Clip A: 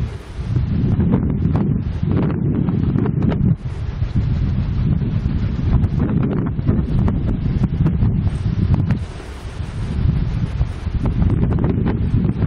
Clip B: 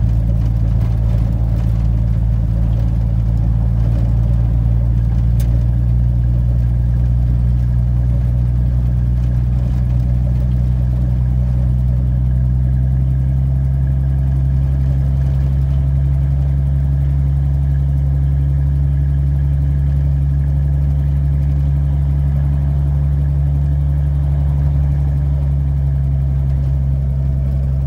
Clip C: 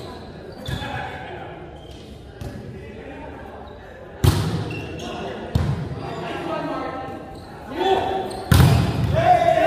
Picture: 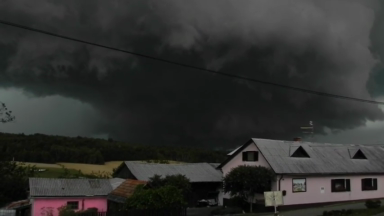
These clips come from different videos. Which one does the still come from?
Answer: A